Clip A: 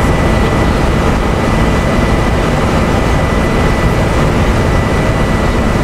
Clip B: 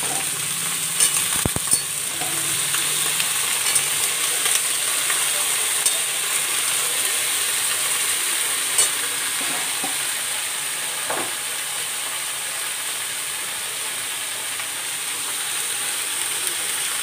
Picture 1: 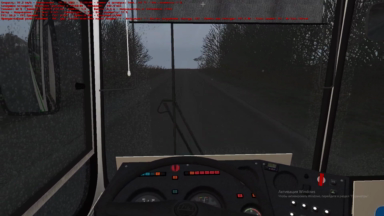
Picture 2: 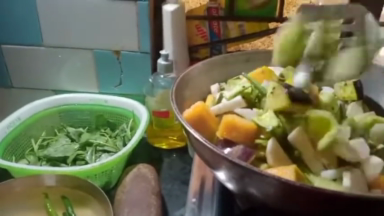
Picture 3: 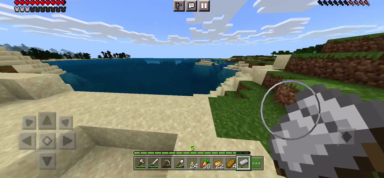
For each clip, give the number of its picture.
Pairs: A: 1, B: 2